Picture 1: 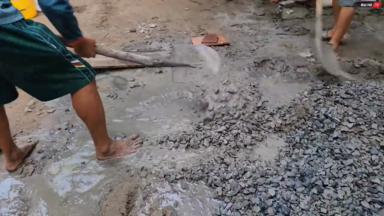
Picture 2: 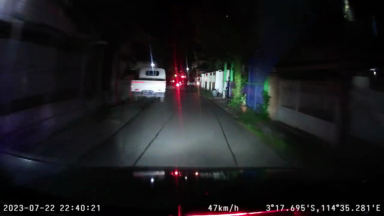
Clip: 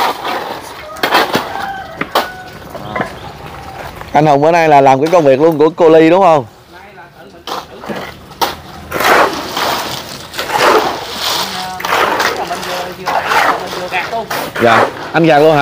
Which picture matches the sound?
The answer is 1